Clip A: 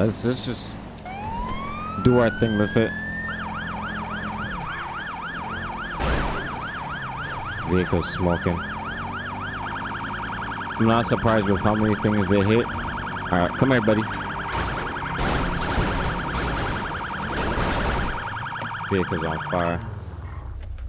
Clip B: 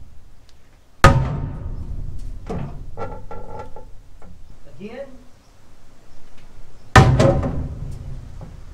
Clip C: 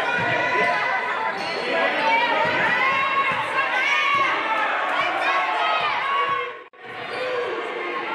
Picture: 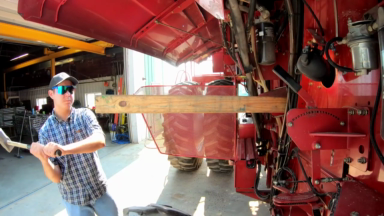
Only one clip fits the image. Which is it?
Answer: B